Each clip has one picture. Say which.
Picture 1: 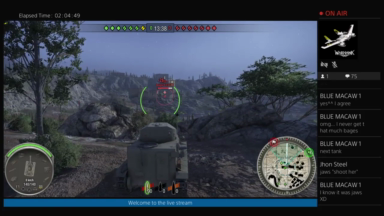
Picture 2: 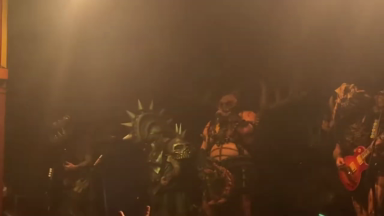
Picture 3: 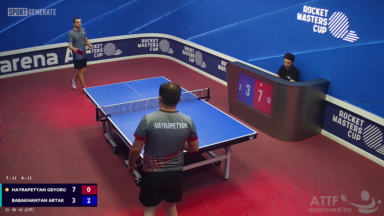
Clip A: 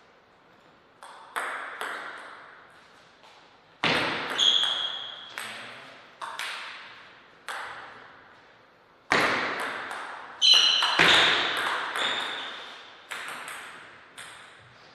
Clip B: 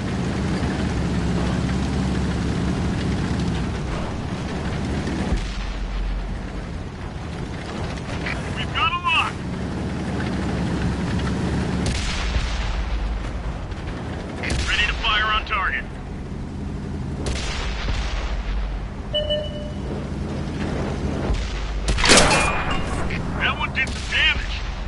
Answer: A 3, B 1